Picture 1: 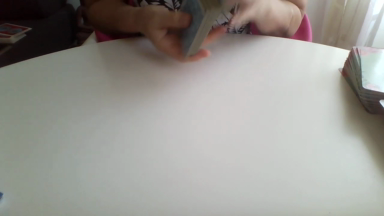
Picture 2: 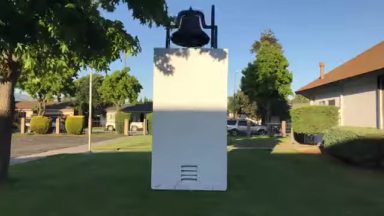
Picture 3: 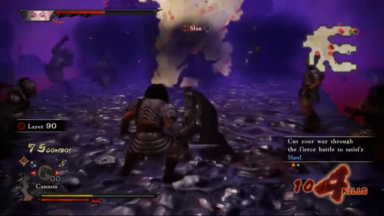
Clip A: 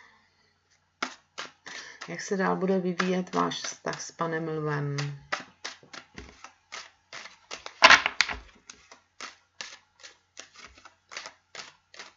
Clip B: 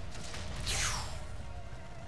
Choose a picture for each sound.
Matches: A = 1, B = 3